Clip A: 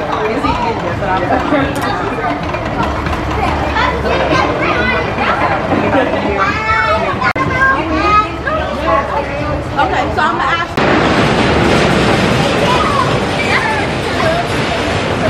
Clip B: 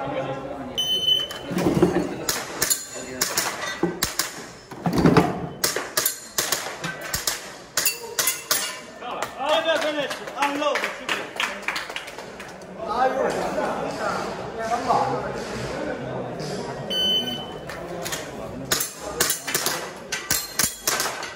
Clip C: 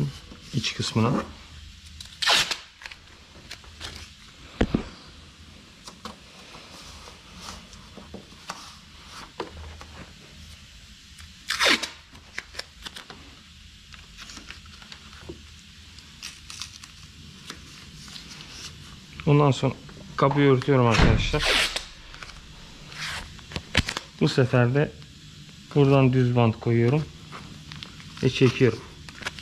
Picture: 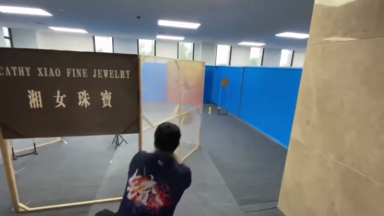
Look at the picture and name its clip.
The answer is B